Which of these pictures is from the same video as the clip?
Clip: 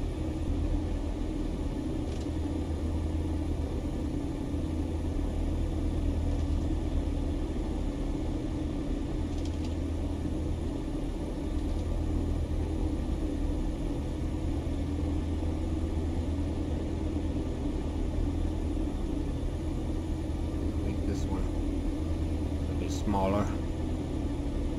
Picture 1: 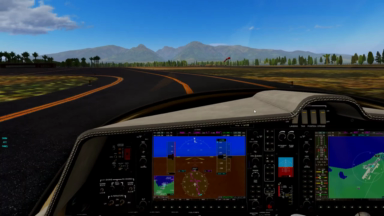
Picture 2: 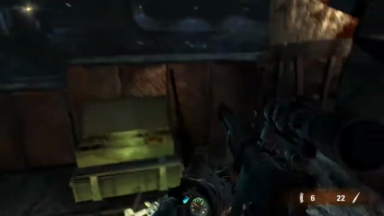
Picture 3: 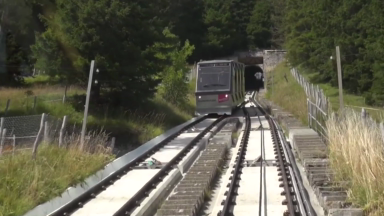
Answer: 1